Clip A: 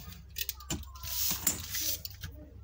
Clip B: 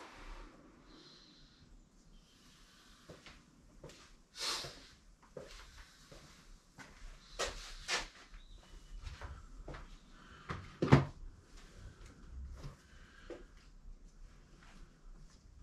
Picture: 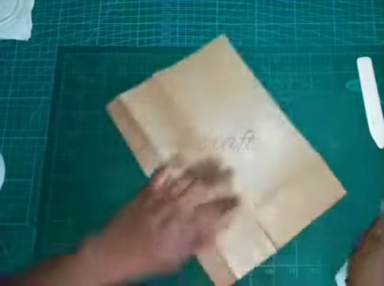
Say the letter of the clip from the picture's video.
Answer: A